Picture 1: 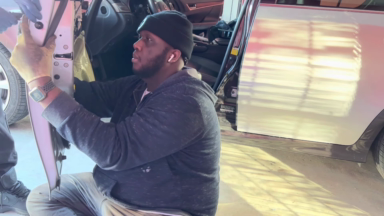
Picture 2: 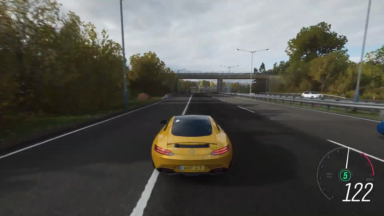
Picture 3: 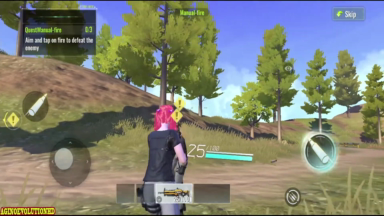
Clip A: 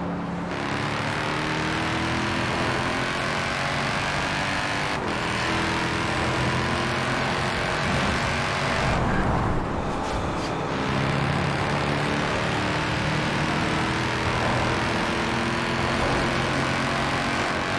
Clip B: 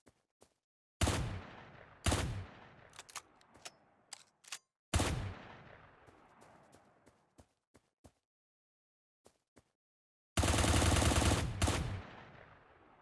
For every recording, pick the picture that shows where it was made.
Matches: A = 2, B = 3